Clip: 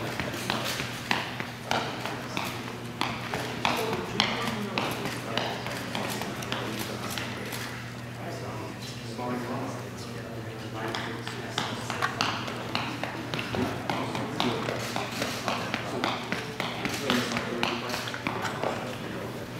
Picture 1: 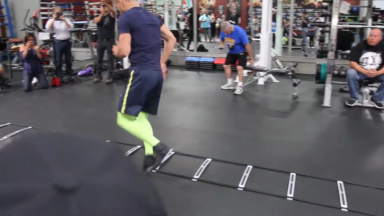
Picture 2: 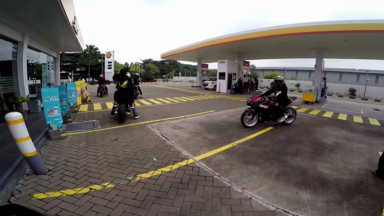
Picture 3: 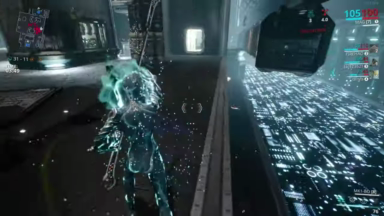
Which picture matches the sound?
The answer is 1